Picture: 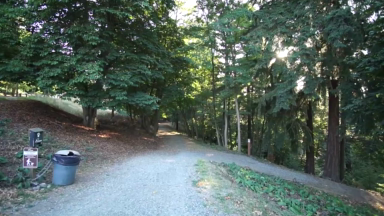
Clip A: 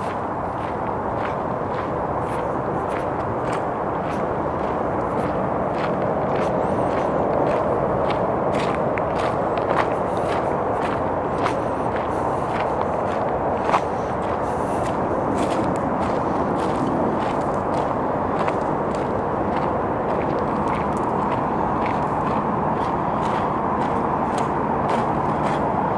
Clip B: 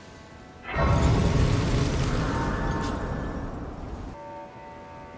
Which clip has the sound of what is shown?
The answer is A